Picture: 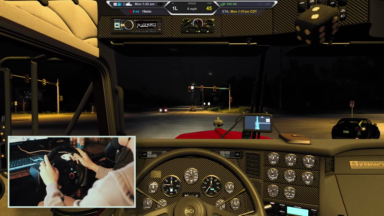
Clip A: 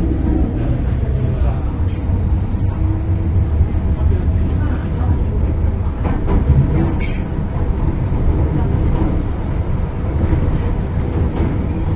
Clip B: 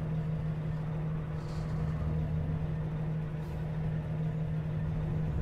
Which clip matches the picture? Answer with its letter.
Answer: B